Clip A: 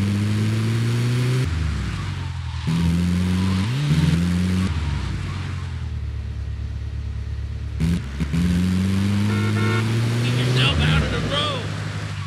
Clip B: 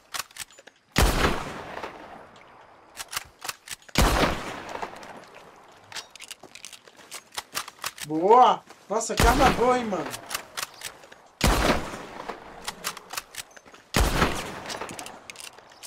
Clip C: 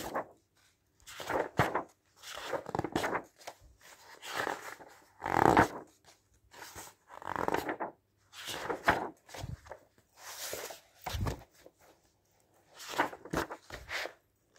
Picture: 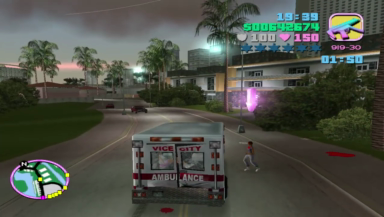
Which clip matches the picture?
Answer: A